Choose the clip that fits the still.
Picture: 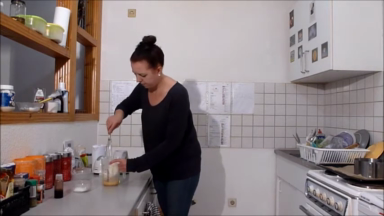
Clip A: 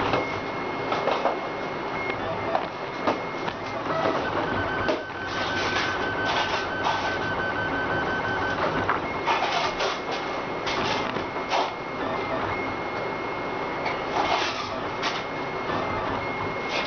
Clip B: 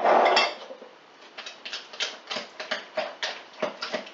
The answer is B